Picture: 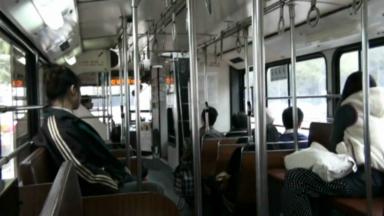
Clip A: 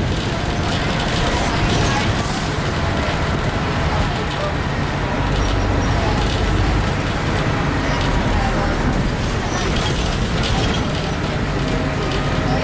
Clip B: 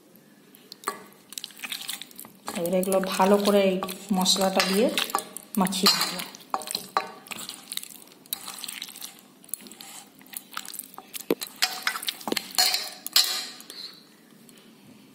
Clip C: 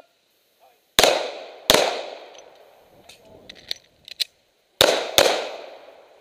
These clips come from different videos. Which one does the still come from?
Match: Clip A